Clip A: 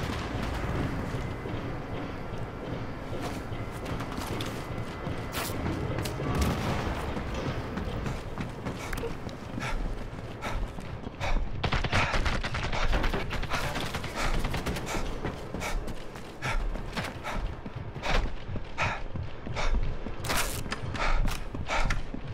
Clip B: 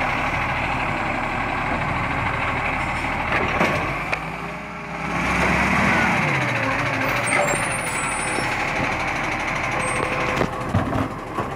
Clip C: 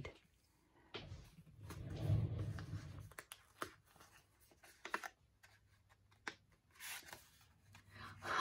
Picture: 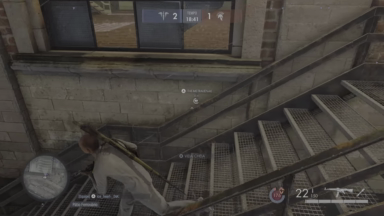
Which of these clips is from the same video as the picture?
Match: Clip A